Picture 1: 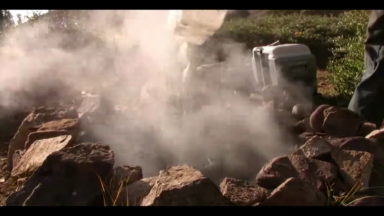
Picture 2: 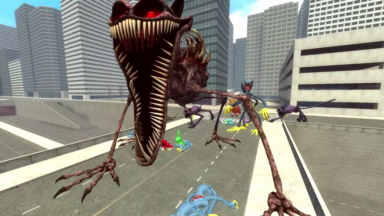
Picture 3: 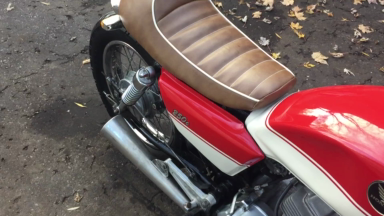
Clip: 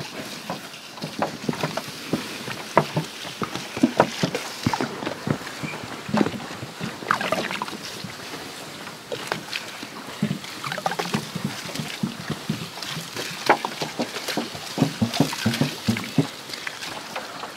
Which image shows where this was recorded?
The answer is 1